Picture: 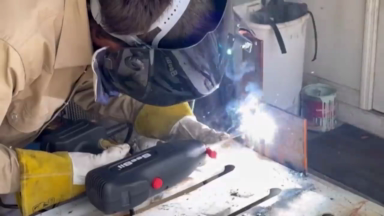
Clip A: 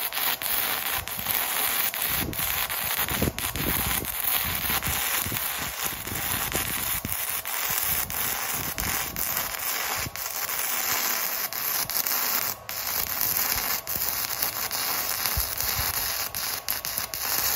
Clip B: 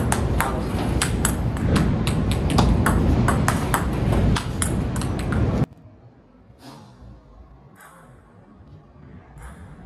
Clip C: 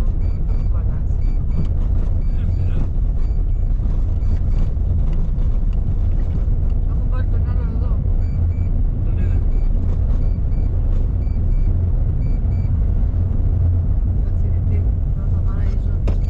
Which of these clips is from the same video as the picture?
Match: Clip A